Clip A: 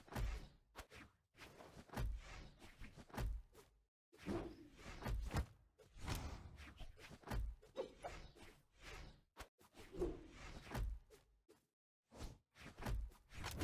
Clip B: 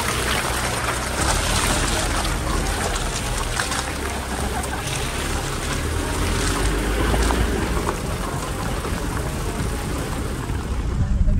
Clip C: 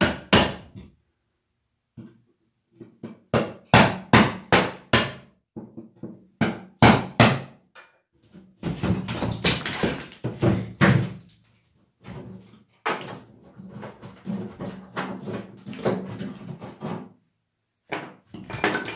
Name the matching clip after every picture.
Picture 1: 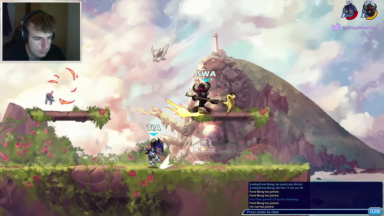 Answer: A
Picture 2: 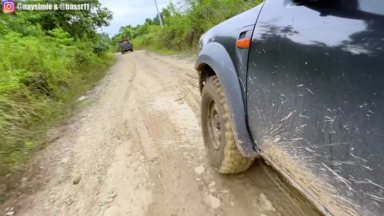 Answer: B